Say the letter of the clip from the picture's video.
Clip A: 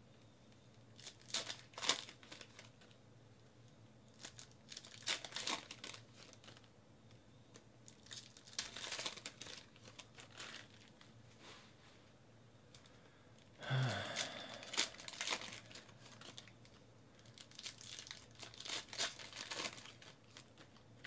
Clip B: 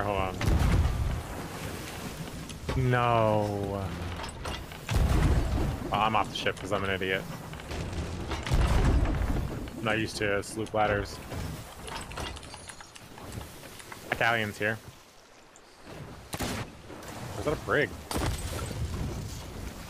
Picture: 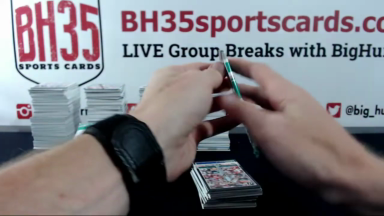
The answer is A